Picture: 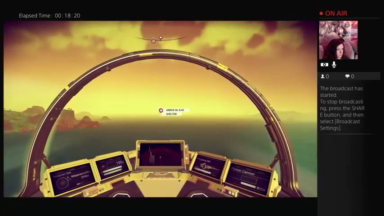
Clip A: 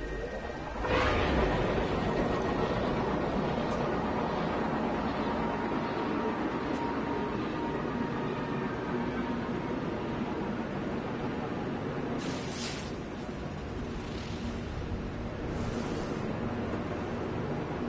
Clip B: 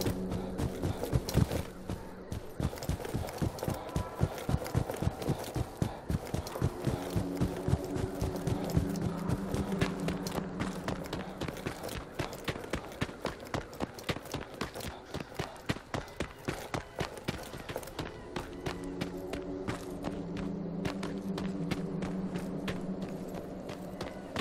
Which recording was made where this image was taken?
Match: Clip A